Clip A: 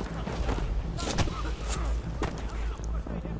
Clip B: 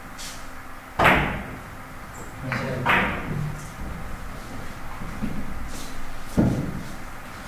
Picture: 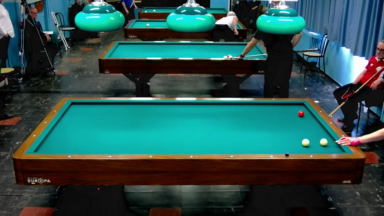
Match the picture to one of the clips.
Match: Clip B